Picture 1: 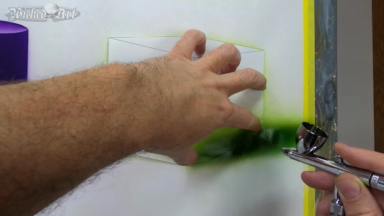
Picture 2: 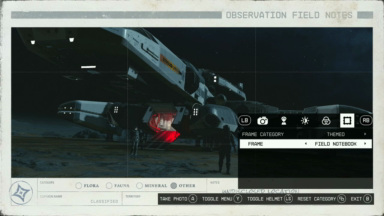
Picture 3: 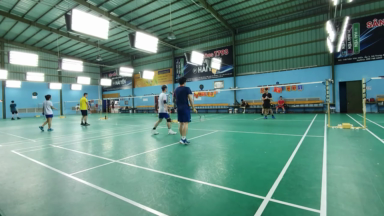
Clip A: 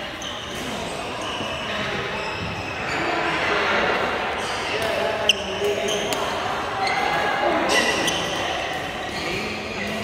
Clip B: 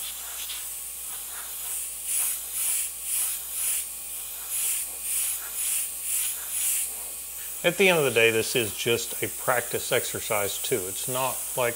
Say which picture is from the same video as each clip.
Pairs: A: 3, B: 1